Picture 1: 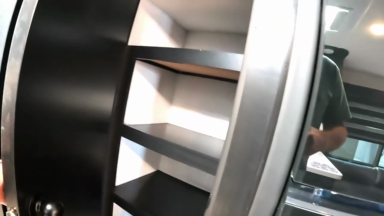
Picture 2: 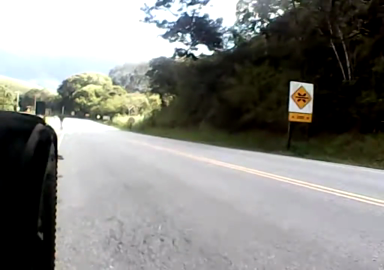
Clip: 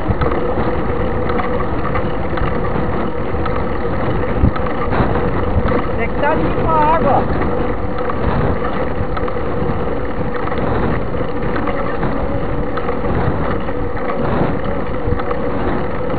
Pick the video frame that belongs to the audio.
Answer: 2